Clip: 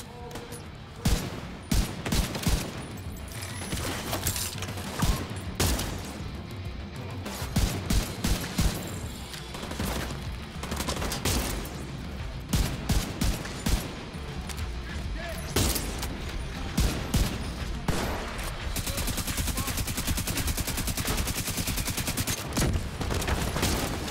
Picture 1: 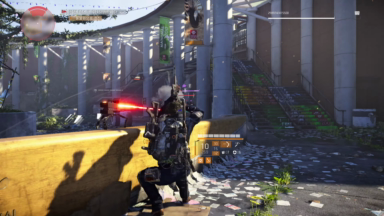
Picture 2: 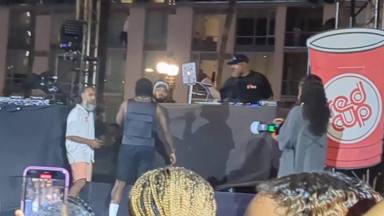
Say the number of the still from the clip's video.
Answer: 1